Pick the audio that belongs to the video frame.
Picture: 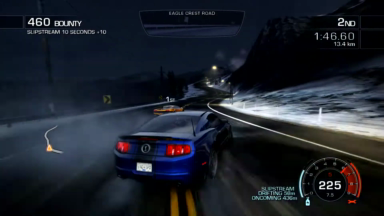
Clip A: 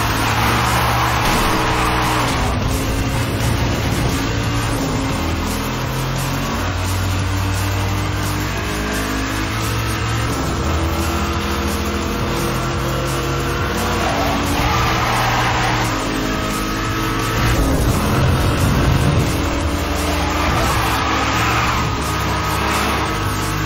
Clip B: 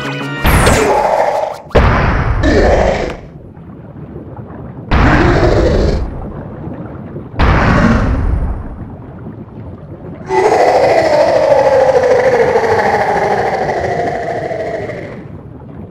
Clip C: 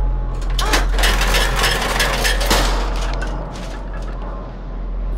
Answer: A